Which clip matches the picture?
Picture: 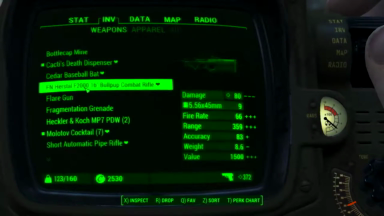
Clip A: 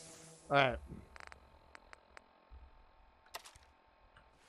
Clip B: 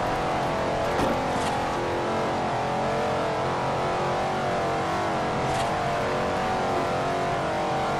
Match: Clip A